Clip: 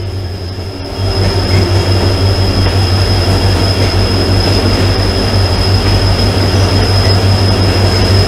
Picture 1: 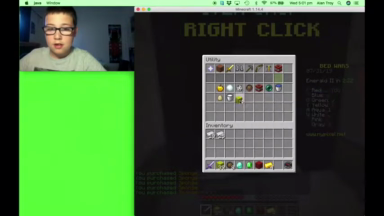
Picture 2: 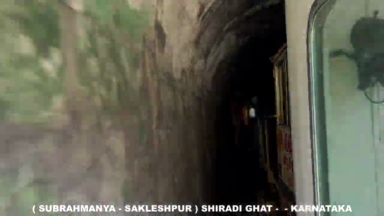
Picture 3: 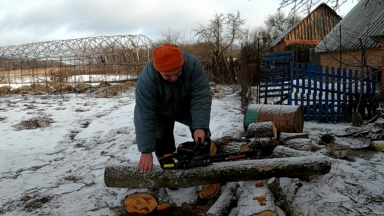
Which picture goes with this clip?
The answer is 2